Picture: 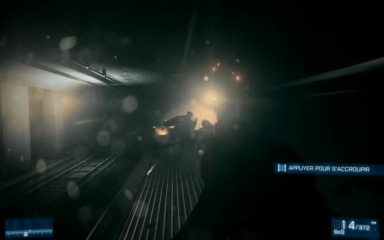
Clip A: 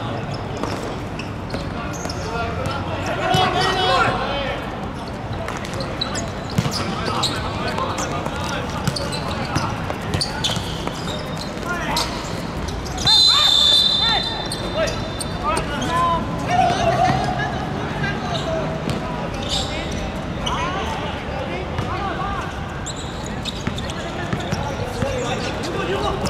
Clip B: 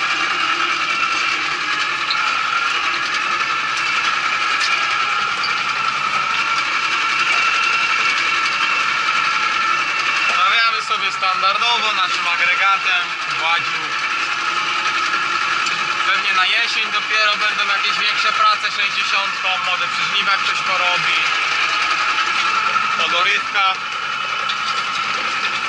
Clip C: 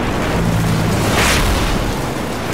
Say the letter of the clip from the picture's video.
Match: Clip C